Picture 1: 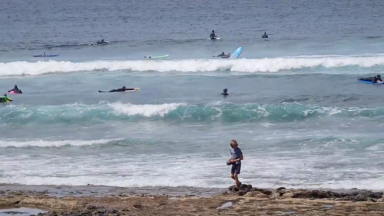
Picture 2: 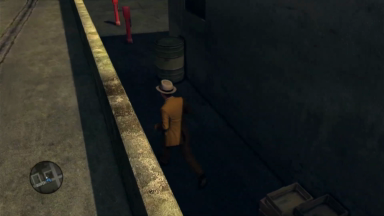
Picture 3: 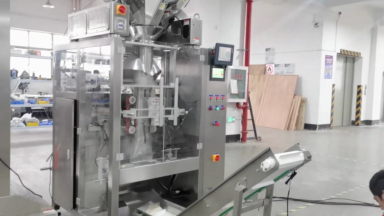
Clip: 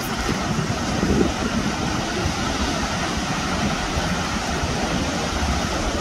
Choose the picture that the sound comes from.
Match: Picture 1